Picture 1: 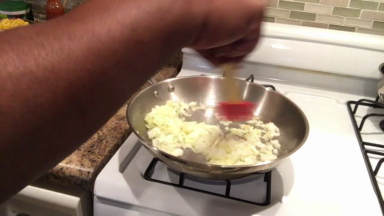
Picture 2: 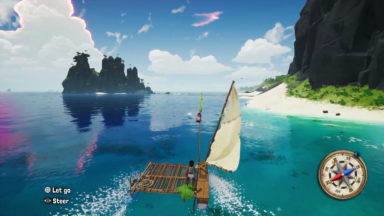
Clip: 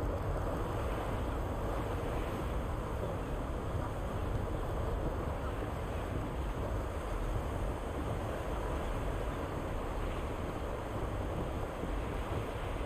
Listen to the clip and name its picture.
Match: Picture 2